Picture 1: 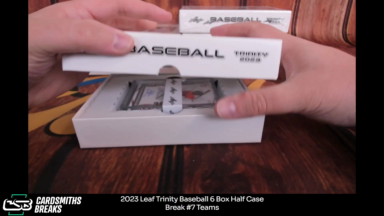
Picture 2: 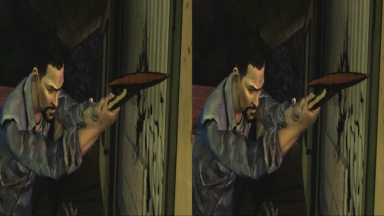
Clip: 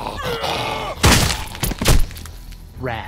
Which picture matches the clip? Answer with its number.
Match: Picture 2